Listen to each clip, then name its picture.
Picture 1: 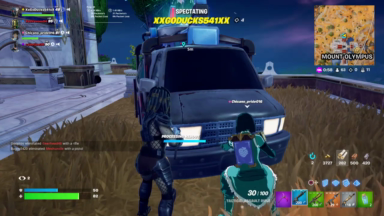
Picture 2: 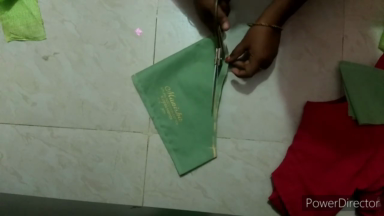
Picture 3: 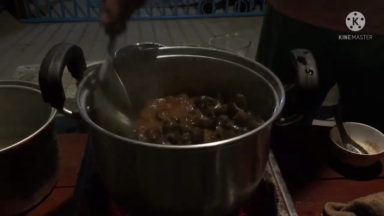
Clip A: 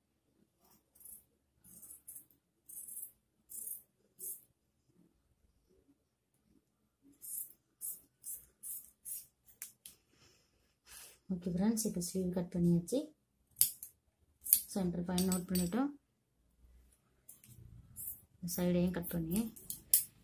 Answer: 2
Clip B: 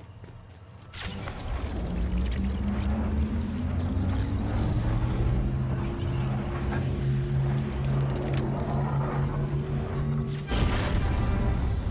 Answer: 1